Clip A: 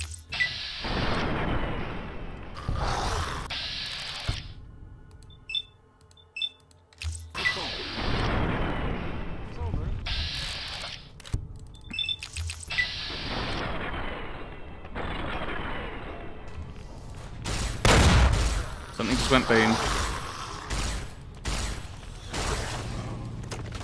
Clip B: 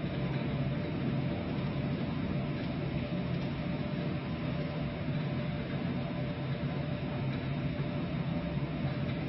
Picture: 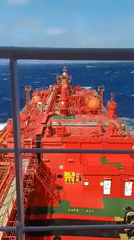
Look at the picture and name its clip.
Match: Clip B